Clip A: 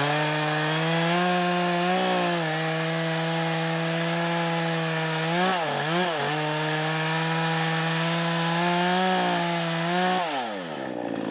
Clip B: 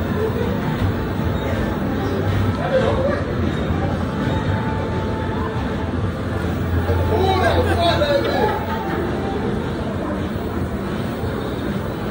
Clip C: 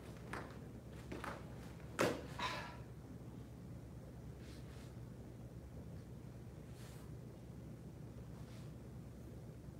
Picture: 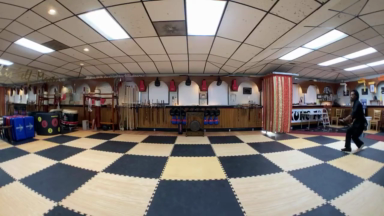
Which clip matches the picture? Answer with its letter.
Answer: C